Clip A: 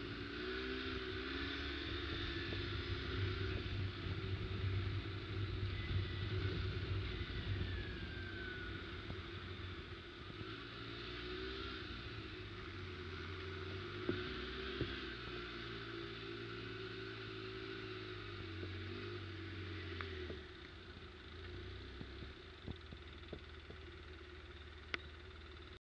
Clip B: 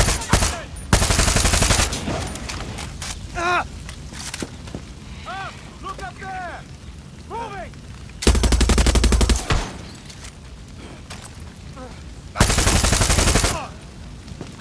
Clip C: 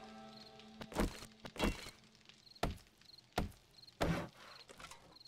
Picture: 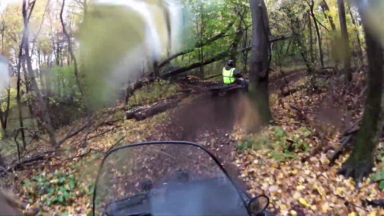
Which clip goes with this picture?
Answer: A